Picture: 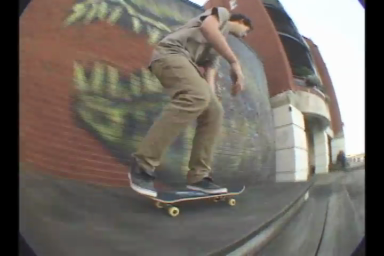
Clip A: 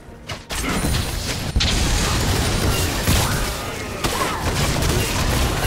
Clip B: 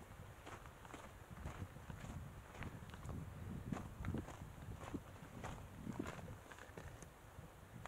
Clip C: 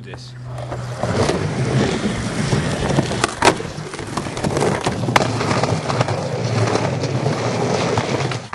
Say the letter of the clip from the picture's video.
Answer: C